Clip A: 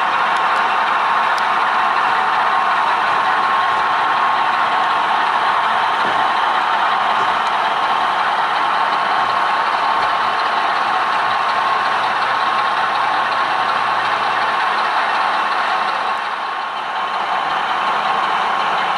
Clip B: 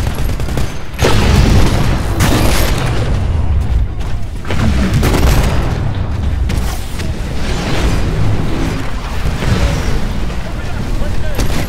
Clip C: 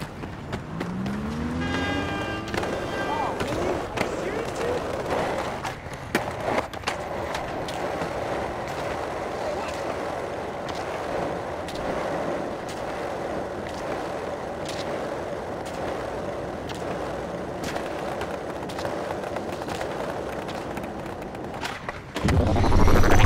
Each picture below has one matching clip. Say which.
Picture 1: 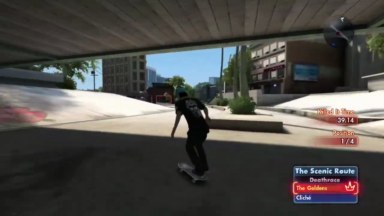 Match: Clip C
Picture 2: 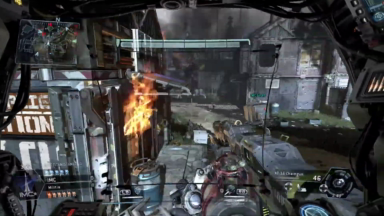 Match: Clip B